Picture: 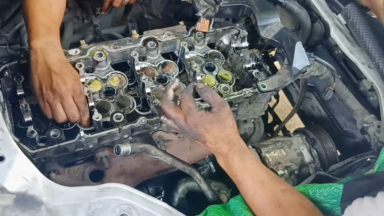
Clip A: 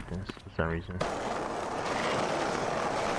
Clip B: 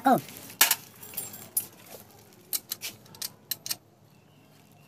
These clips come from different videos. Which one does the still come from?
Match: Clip B